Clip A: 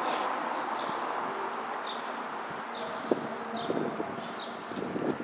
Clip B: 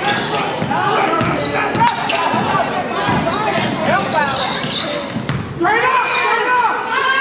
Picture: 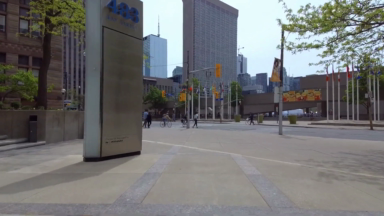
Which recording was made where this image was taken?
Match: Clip A